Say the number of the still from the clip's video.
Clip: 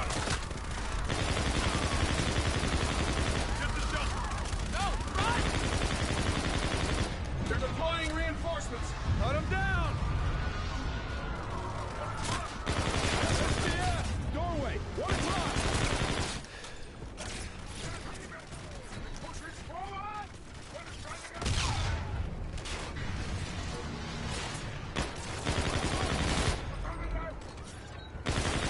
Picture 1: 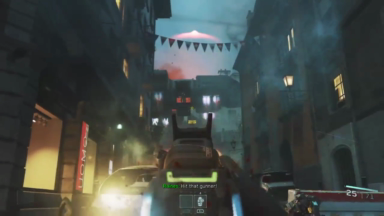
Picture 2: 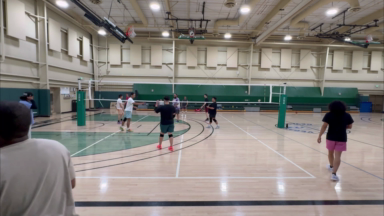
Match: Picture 1